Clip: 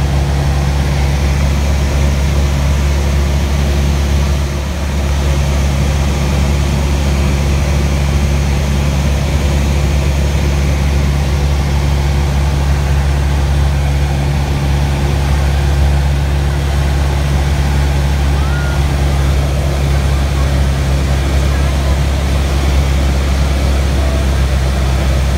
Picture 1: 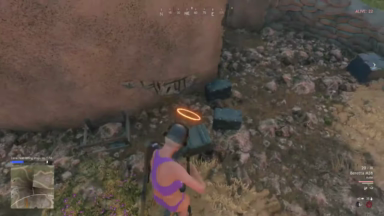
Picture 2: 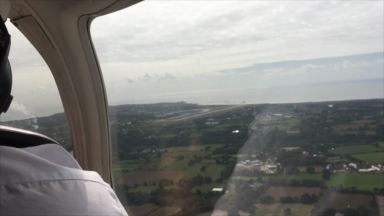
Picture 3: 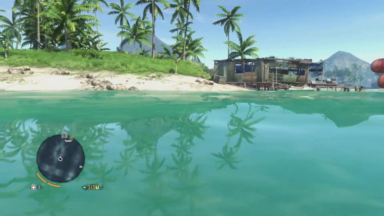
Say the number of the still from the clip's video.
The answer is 2